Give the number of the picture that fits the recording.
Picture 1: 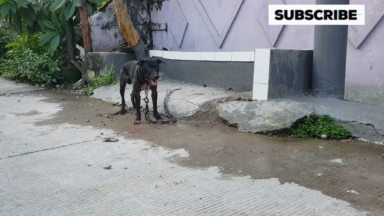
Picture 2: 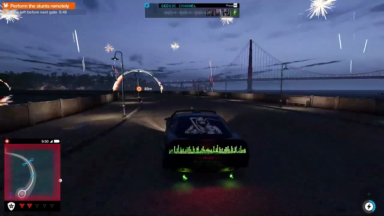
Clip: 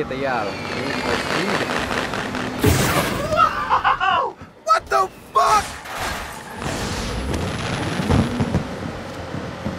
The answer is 2